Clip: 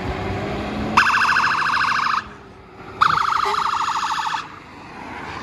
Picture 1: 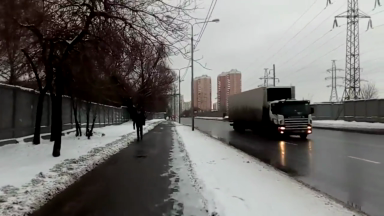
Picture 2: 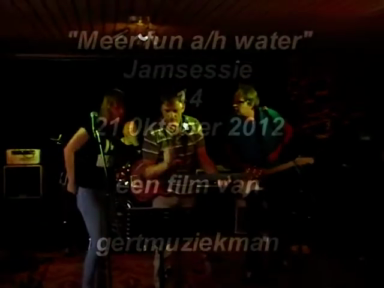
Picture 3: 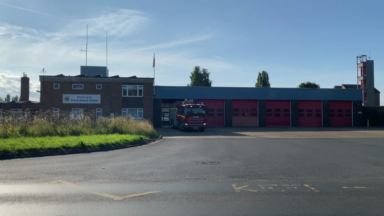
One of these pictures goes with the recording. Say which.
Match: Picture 3